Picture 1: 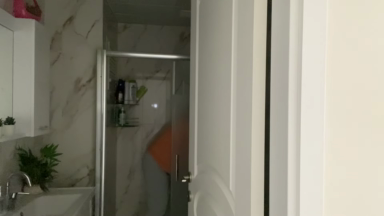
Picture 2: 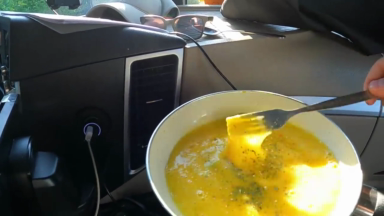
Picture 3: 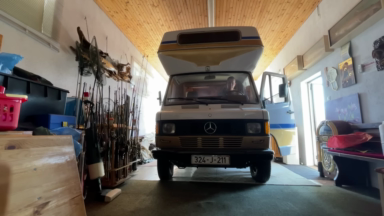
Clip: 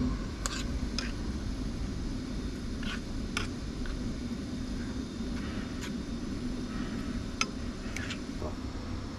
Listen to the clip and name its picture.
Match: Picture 2